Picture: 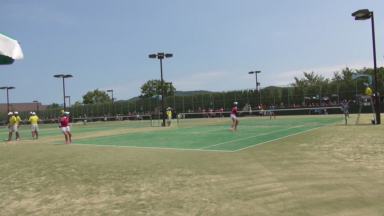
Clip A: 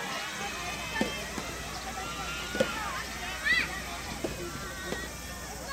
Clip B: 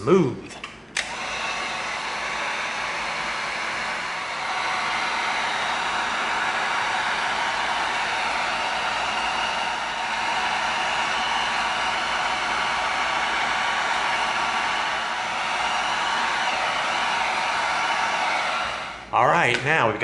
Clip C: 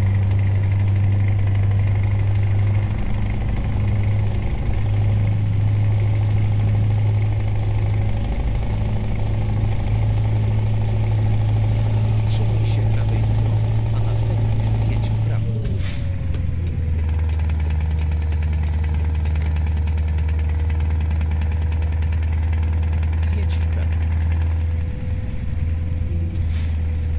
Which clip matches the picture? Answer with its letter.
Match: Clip A